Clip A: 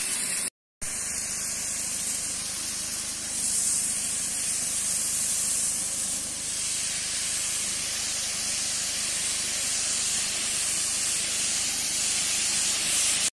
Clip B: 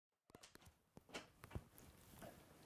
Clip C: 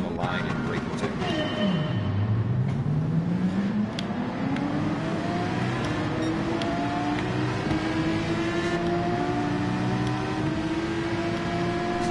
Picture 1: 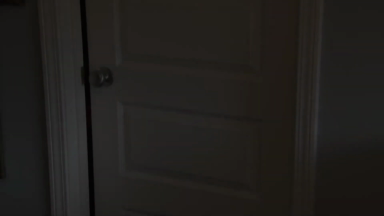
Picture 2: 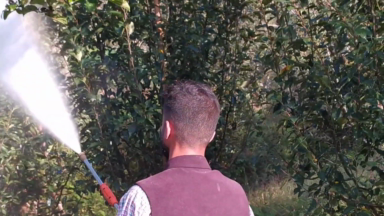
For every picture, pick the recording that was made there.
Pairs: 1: B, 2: A